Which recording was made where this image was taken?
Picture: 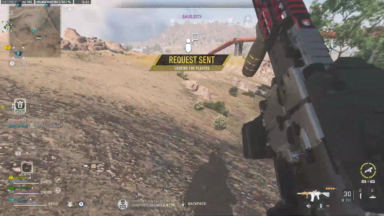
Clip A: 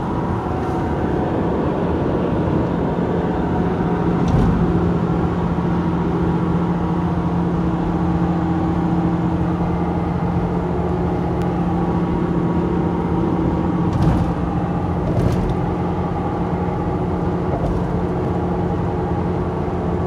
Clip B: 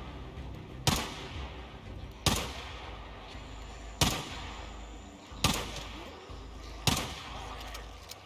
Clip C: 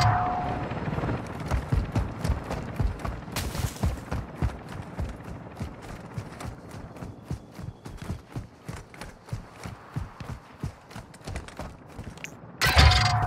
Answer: C